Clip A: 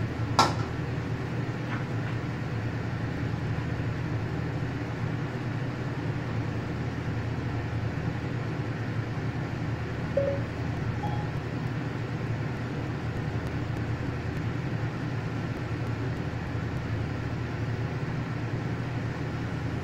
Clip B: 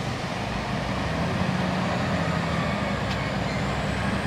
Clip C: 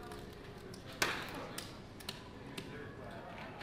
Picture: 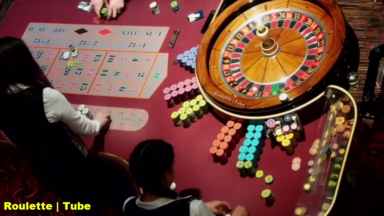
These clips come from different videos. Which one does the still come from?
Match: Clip C